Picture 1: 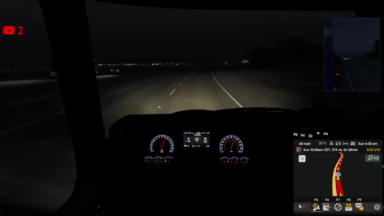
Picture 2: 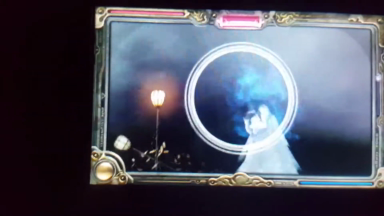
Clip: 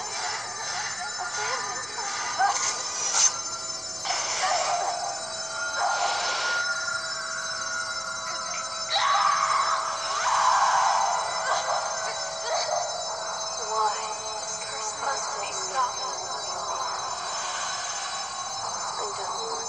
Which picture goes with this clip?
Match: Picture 2